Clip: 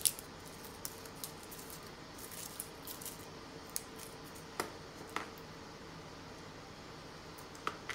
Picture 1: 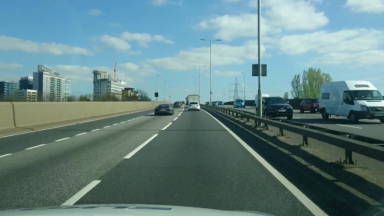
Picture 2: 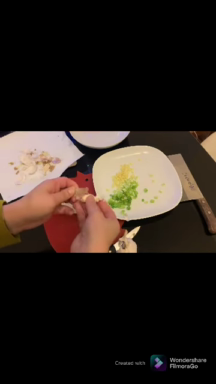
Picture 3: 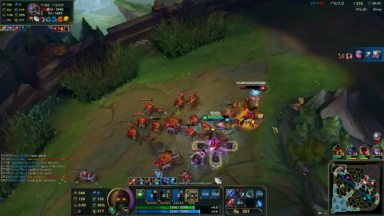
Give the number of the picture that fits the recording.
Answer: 2